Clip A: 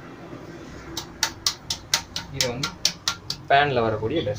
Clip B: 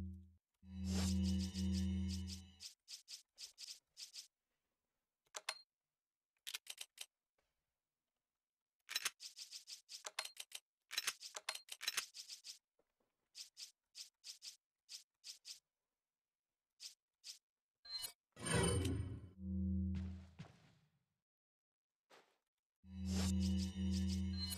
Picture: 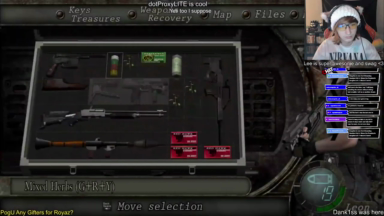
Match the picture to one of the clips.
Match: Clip B